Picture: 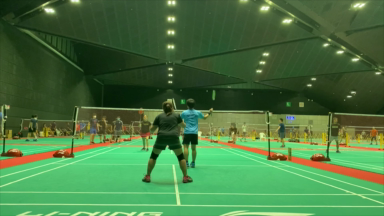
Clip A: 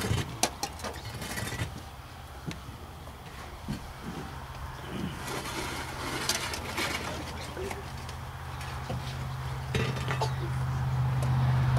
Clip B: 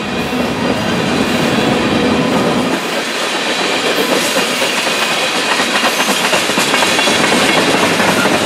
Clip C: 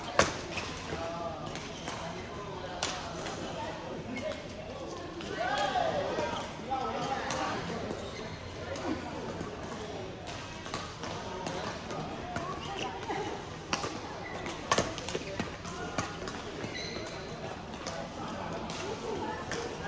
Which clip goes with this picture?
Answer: C